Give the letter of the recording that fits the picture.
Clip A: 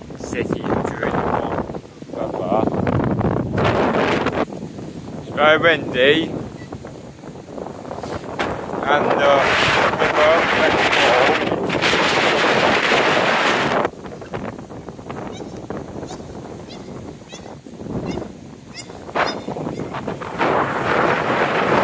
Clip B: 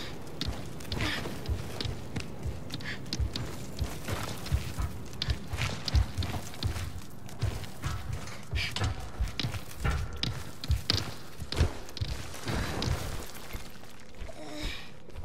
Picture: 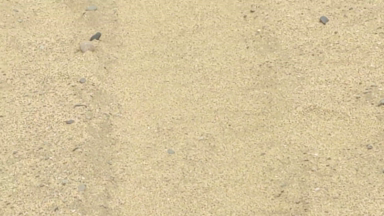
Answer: A